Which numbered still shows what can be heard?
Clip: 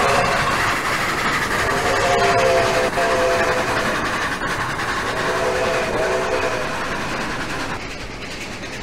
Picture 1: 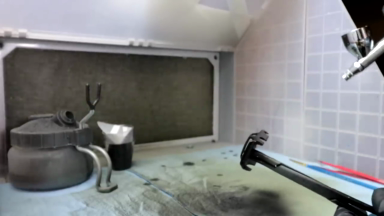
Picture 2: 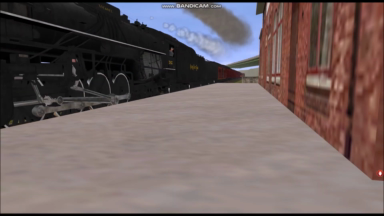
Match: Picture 2